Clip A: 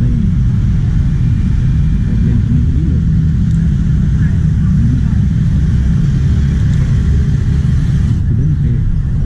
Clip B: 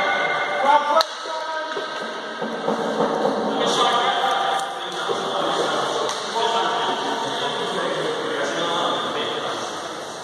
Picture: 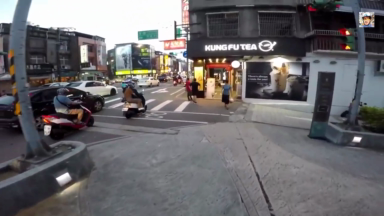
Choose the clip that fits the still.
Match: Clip A